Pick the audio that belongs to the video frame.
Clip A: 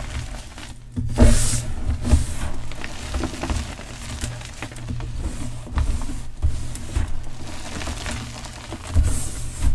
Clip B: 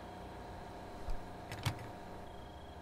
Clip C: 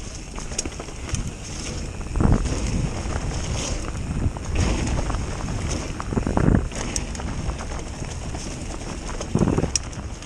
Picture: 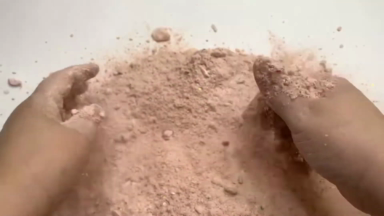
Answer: A